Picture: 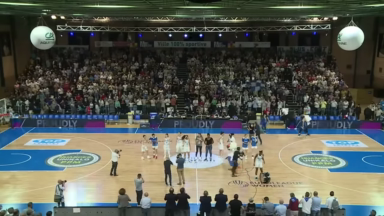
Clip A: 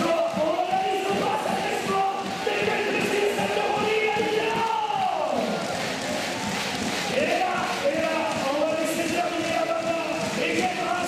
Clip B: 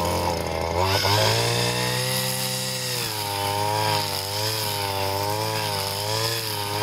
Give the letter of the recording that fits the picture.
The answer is A